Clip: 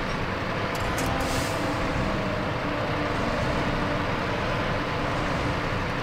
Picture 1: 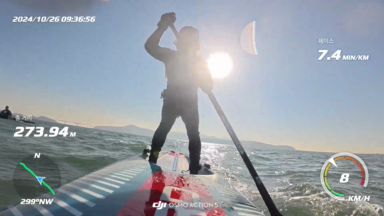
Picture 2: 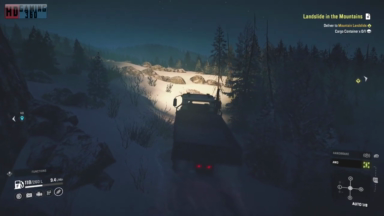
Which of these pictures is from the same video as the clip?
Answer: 2